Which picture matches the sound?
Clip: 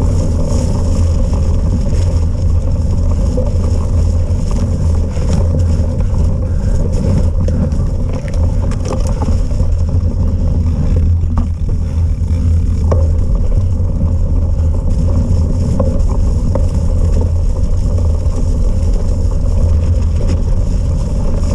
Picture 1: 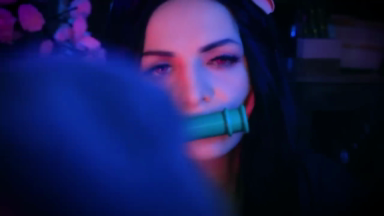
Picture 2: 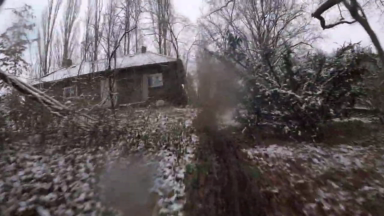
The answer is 2